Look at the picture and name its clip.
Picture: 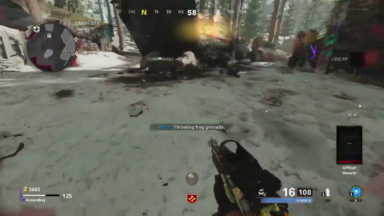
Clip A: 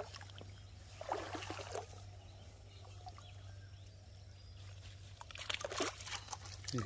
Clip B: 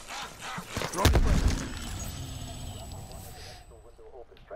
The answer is B